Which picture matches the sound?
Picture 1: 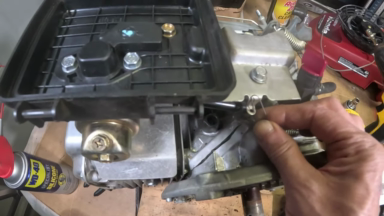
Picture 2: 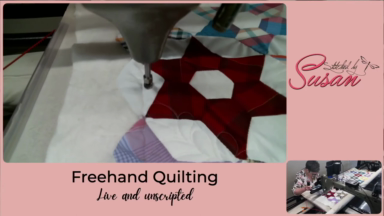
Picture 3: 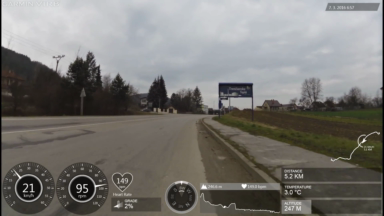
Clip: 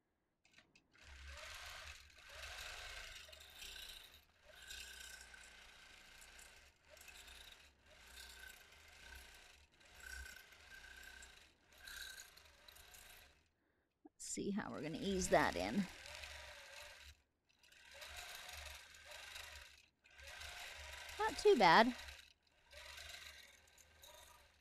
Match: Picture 2